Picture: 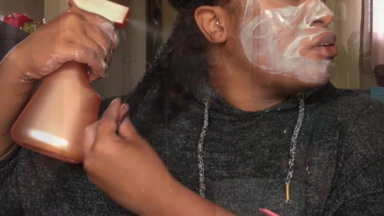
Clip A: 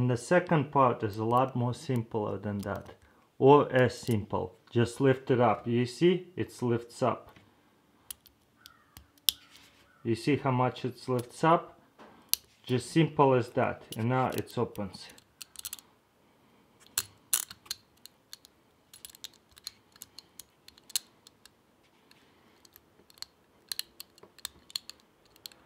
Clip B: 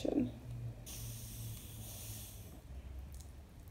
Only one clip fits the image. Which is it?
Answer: B